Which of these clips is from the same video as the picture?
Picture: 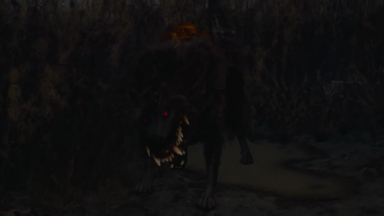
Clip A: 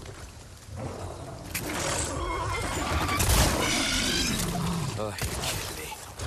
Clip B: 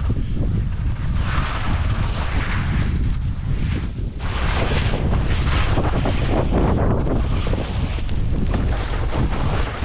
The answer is A